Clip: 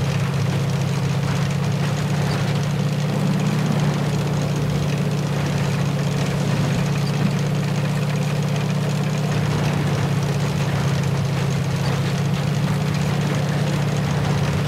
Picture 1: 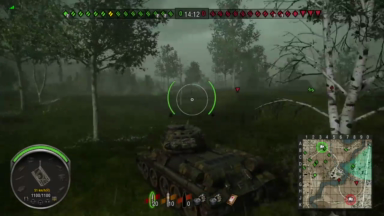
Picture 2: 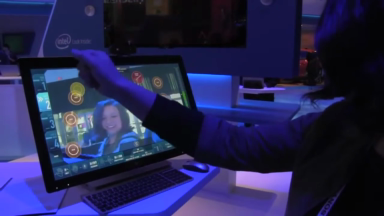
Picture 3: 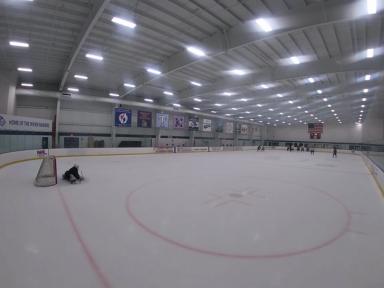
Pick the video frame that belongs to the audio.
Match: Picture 1